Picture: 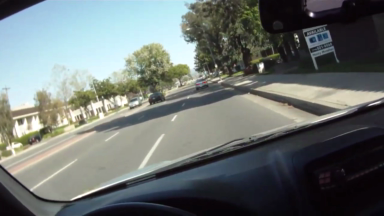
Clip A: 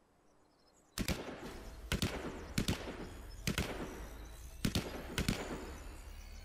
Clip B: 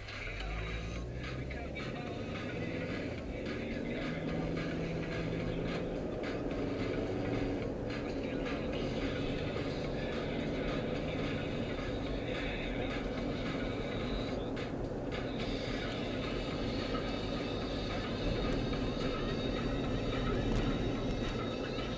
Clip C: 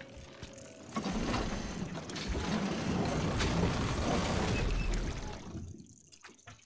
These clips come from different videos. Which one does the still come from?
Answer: B